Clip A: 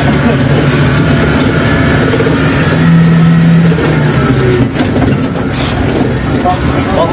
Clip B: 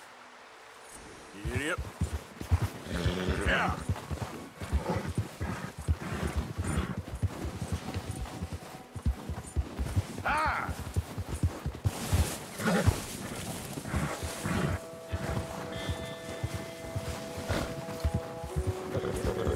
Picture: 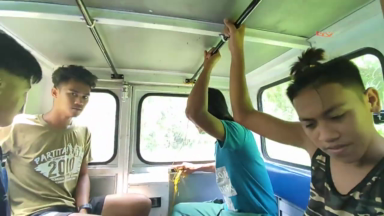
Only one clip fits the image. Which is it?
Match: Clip A